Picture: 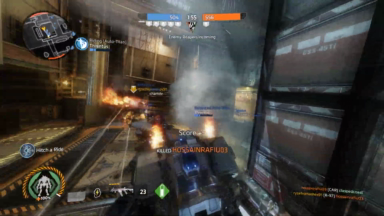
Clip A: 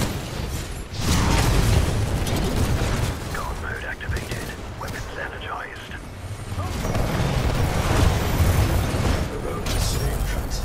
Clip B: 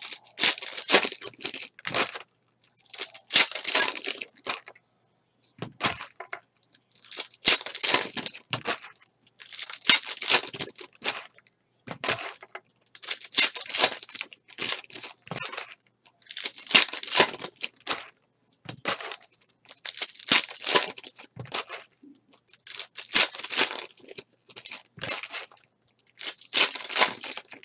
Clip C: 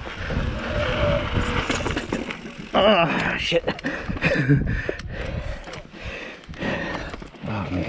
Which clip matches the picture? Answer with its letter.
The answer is A